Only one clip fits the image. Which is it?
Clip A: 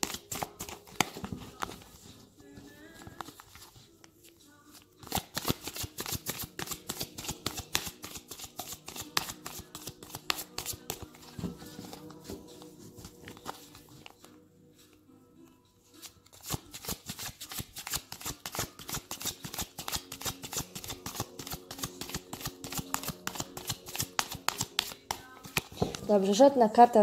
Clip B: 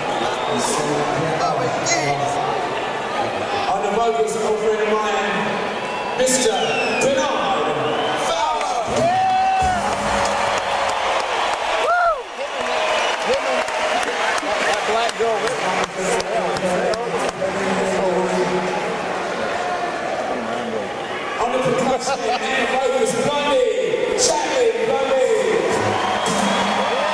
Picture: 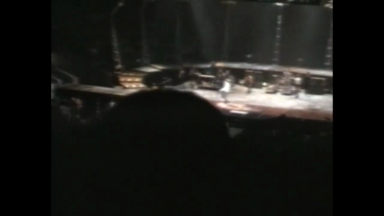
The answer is B